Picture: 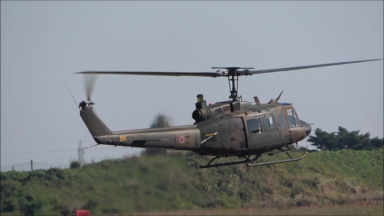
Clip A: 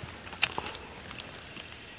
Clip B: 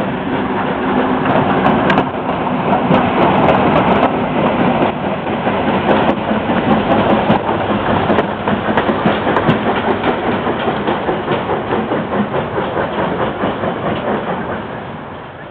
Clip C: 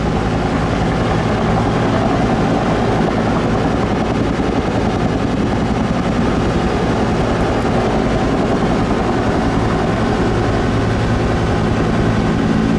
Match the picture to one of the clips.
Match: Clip C